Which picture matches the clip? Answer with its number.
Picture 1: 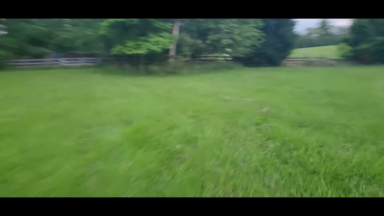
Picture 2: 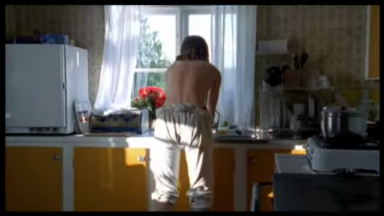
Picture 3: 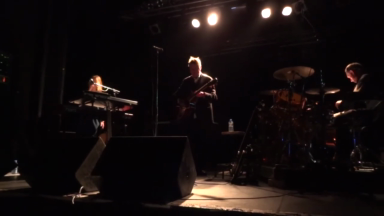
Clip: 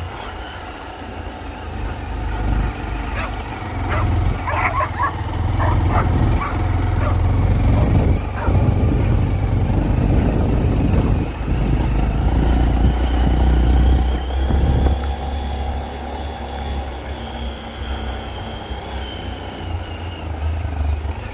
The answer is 1